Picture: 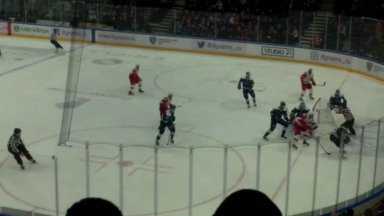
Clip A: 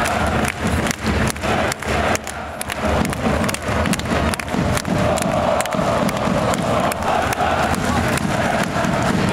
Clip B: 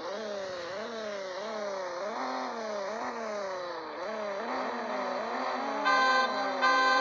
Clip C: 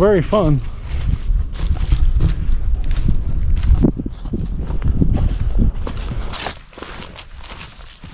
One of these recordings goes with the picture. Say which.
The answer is A